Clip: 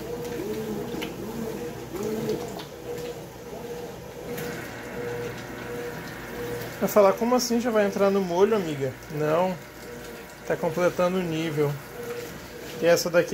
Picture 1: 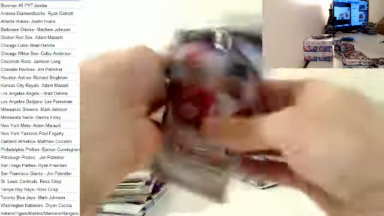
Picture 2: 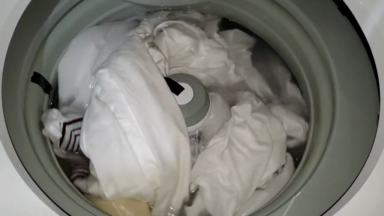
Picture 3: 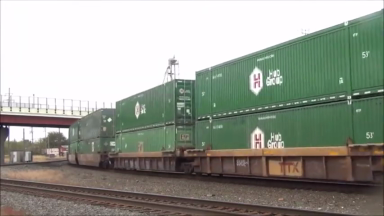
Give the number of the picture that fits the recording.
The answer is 2